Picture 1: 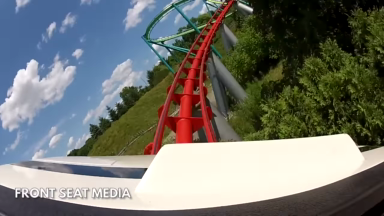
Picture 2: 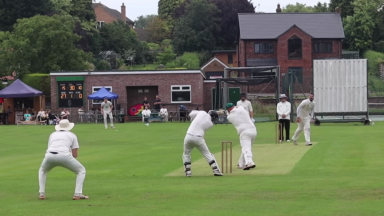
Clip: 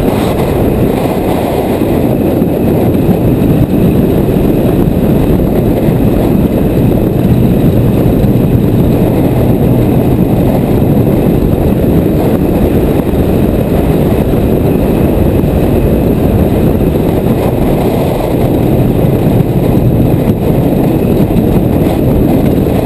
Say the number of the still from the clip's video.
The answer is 1